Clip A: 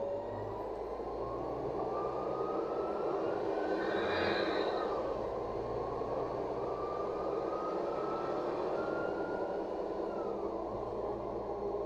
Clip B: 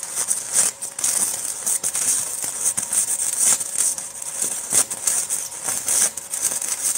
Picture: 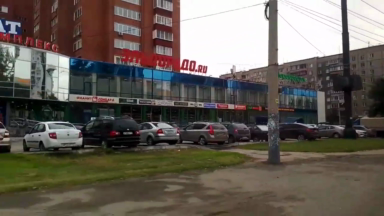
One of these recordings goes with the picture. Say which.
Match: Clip A